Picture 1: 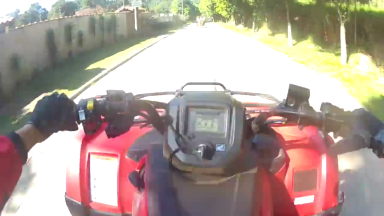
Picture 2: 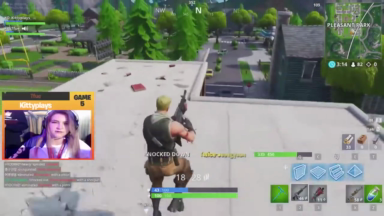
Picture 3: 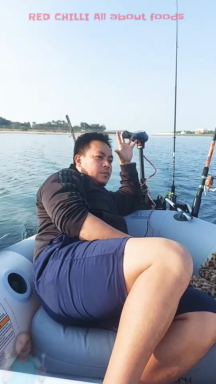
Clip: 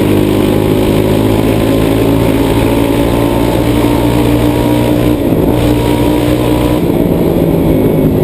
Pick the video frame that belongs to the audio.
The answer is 1